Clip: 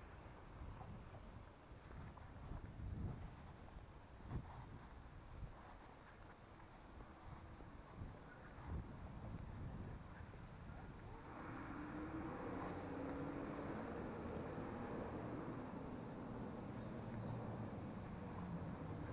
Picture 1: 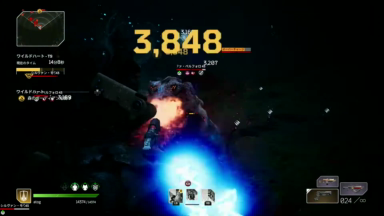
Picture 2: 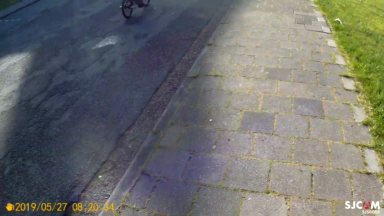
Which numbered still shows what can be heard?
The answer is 2